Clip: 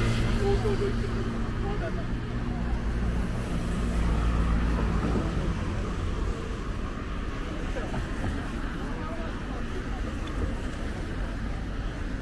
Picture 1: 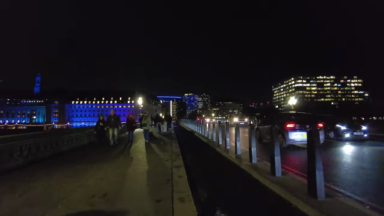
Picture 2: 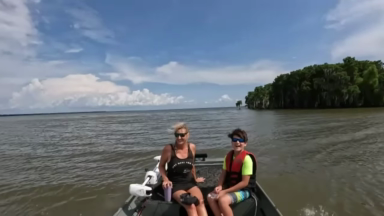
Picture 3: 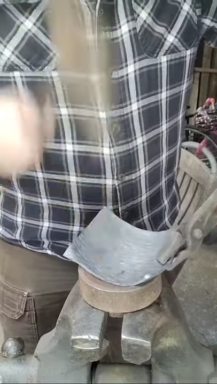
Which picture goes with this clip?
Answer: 1